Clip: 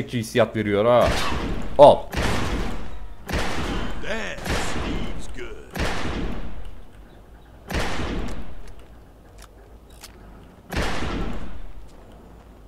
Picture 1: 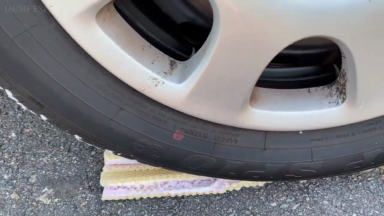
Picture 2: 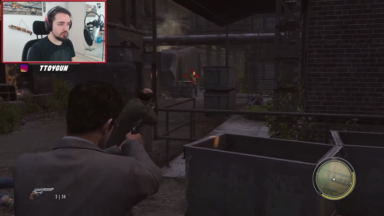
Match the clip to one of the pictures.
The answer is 2